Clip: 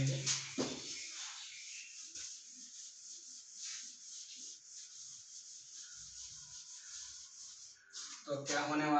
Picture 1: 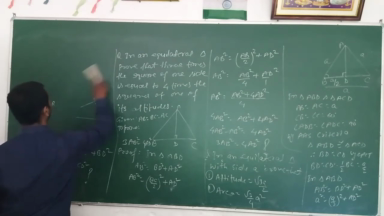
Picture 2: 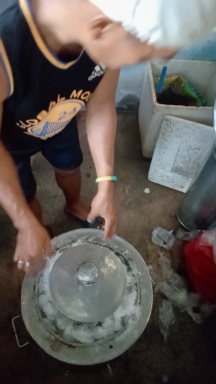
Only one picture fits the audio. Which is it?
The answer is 1